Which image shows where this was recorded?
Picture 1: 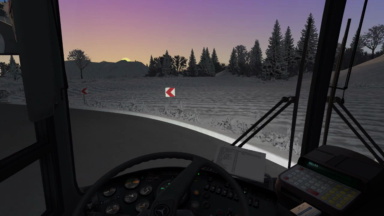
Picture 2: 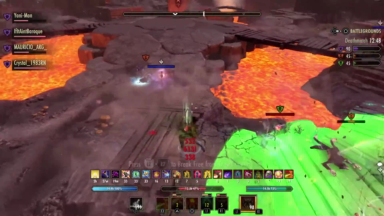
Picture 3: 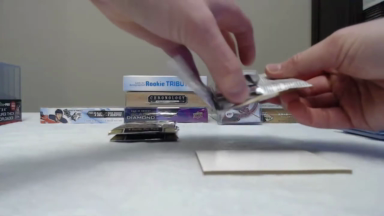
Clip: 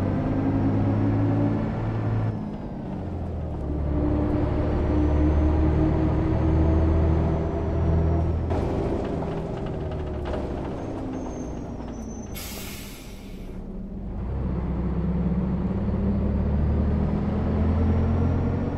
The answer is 1